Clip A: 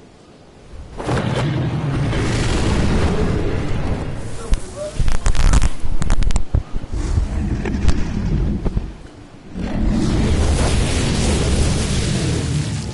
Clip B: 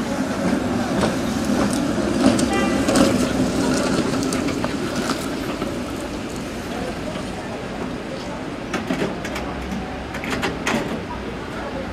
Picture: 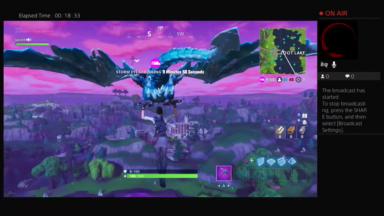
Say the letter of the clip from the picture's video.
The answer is A